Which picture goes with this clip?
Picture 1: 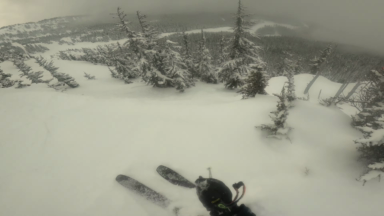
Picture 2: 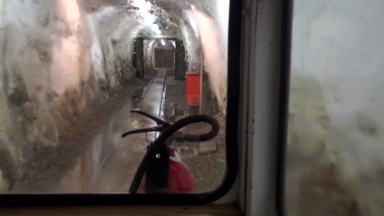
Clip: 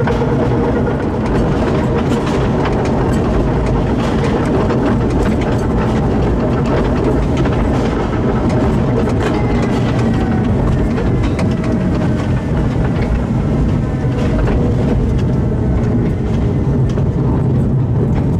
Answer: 2